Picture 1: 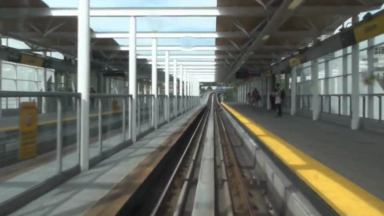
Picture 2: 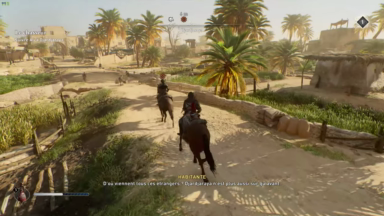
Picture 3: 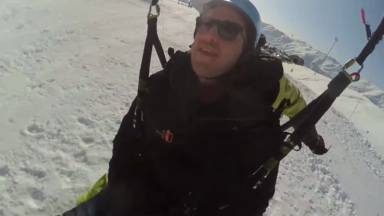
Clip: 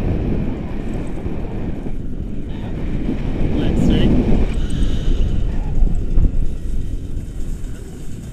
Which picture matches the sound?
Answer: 3